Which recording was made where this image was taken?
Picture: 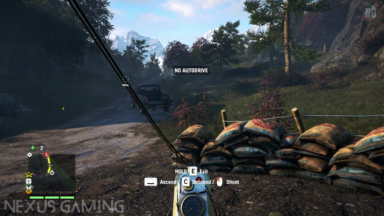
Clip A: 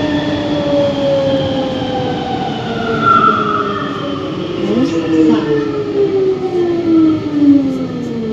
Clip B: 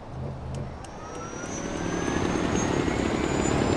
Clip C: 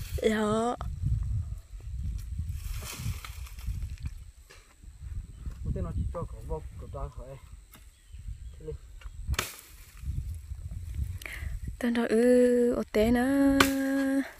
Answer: B